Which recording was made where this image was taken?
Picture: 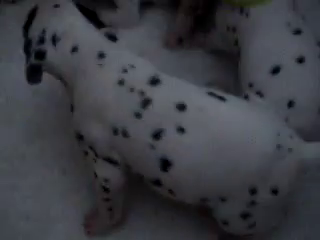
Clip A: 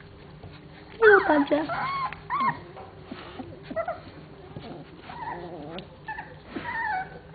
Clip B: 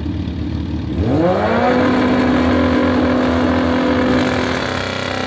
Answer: A